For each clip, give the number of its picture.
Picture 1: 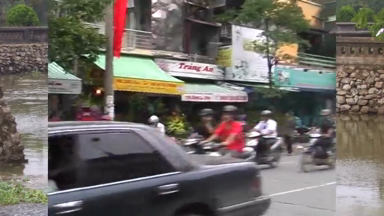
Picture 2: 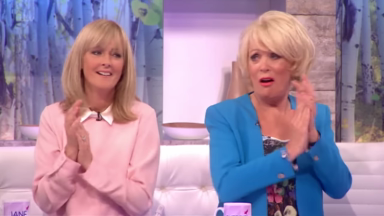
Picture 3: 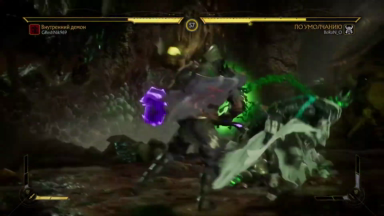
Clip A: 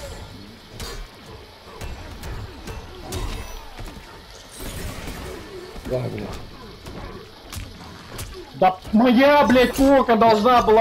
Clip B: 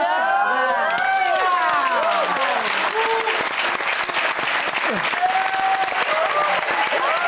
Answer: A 3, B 2